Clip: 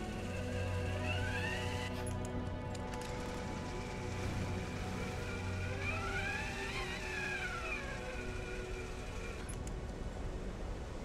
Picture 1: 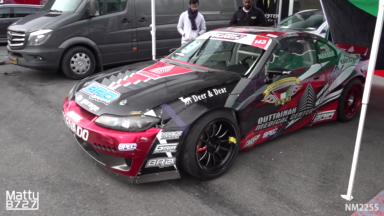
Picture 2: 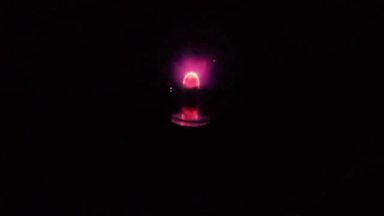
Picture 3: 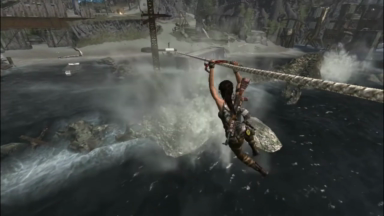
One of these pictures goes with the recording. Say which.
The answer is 3